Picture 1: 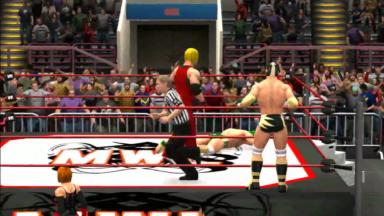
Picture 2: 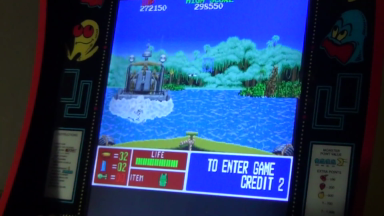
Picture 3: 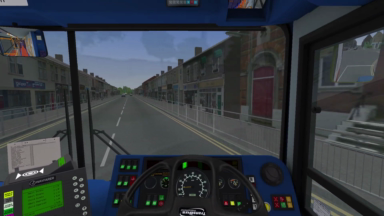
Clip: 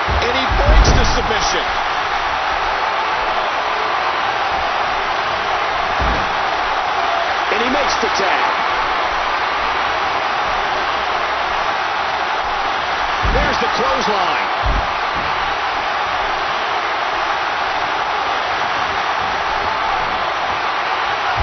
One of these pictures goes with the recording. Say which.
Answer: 1